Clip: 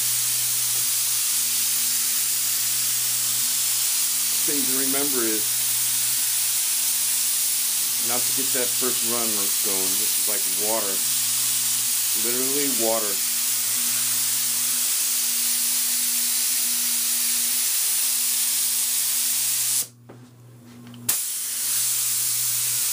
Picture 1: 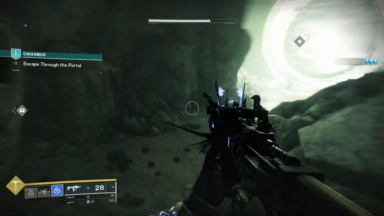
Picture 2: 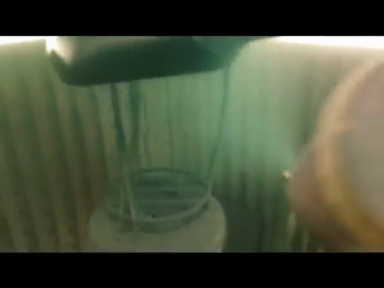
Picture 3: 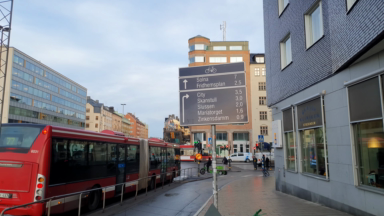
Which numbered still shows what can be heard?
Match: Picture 2